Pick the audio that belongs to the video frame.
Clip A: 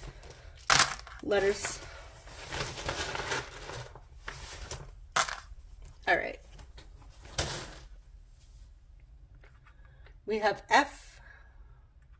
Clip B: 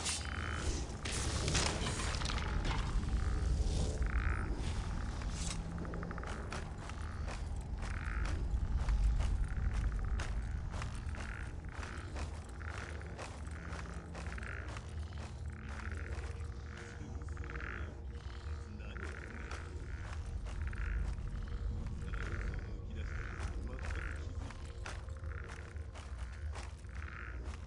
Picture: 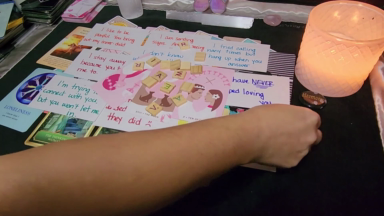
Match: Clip A